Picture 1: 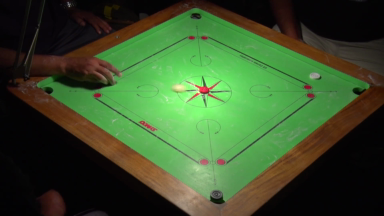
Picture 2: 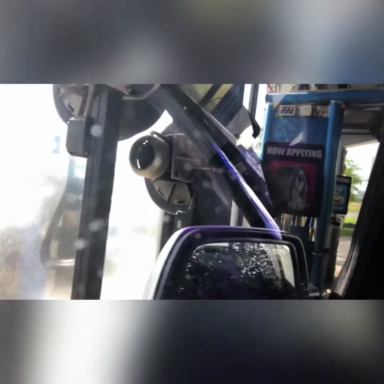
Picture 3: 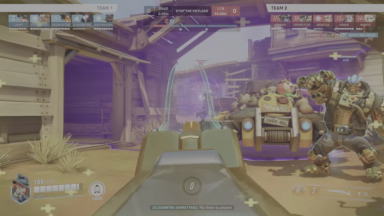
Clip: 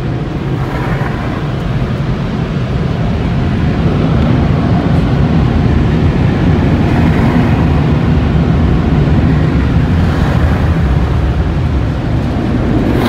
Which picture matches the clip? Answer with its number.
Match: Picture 2